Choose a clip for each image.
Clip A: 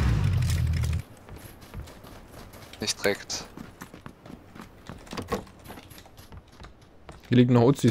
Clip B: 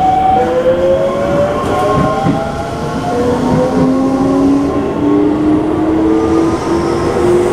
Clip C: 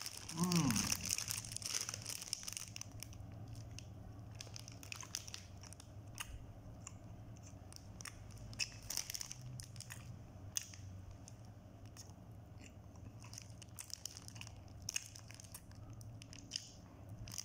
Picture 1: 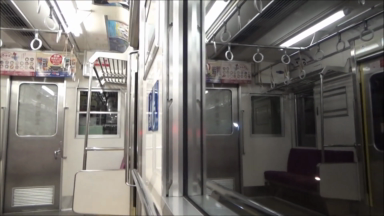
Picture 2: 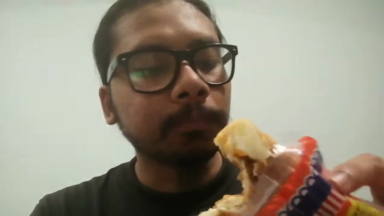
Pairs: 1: B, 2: C